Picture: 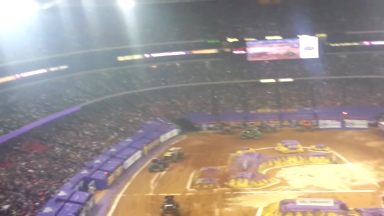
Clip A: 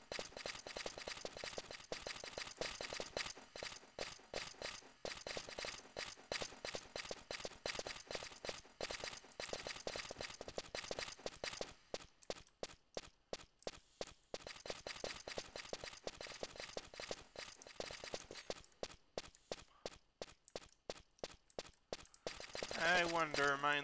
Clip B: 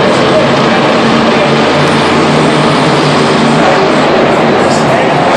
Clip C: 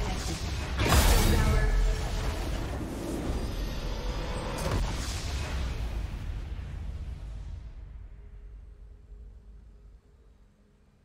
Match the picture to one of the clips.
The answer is B